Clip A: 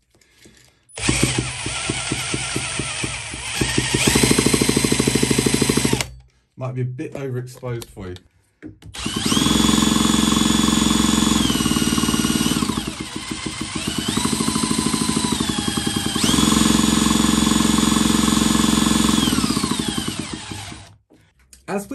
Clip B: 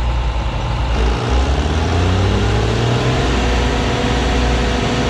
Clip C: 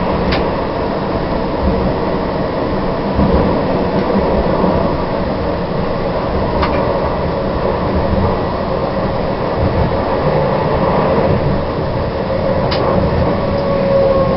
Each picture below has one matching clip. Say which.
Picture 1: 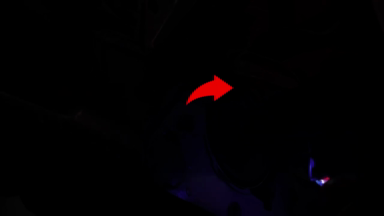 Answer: A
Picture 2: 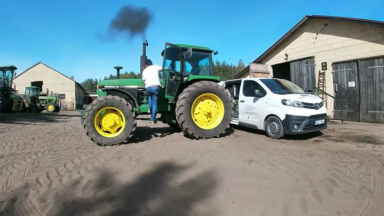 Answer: B